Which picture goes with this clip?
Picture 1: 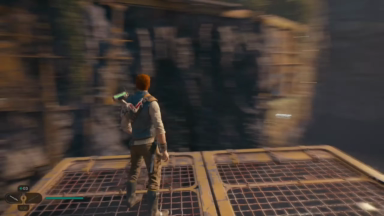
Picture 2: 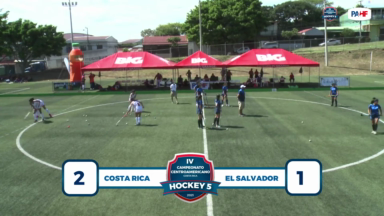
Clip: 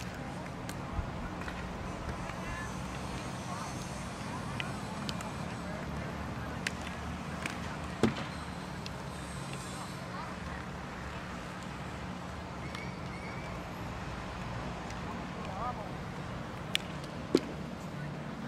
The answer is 2